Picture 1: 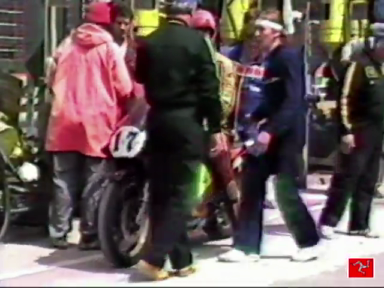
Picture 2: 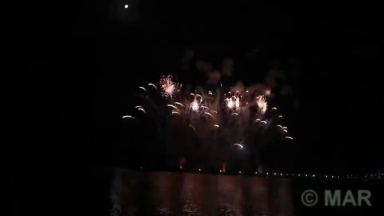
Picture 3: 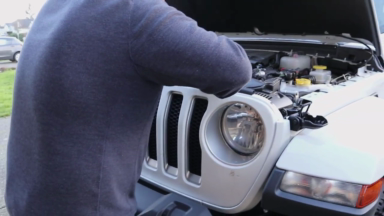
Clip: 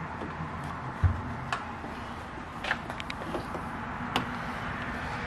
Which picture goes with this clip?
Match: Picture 3